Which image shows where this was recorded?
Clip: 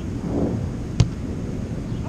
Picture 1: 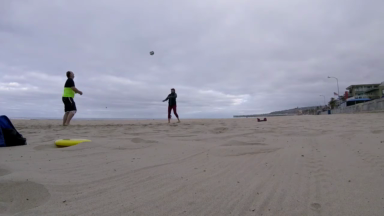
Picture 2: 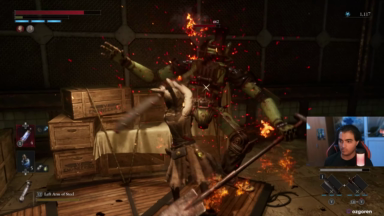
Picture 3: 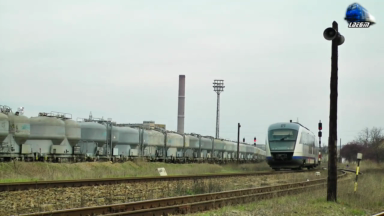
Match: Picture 1